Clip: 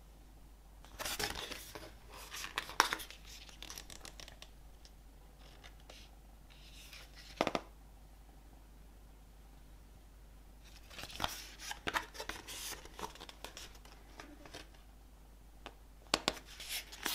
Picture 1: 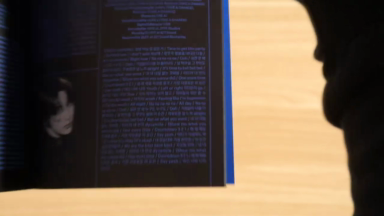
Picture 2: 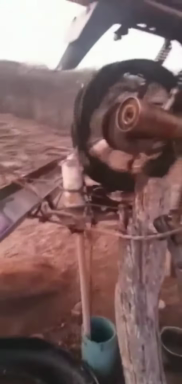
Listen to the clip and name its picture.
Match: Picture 1